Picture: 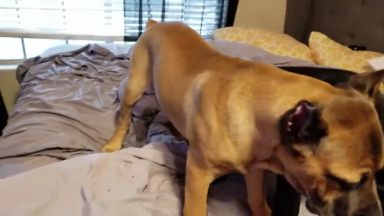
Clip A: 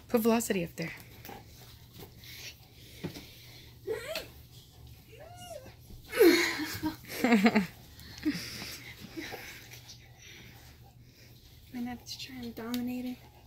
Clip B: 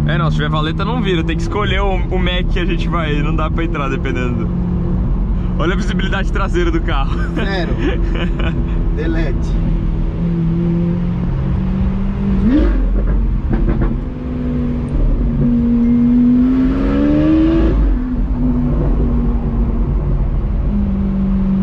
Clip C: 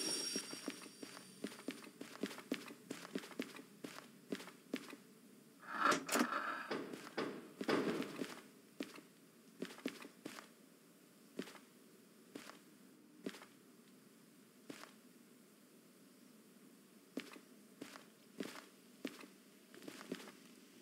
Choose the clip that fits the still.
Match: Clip A